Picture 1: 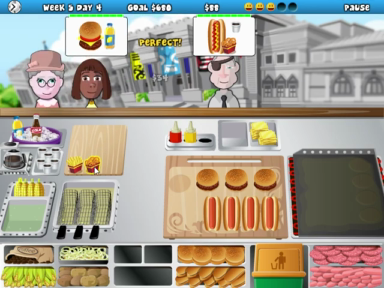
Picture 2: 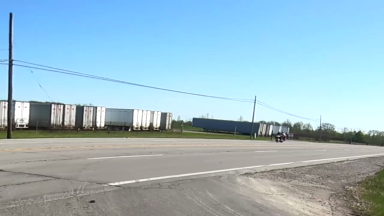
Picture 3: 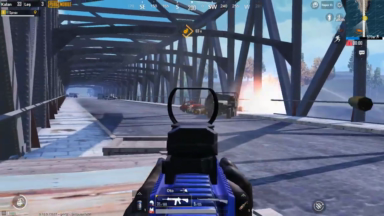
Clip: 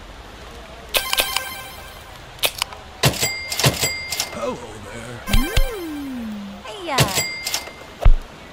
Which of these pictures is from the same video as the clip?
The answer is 1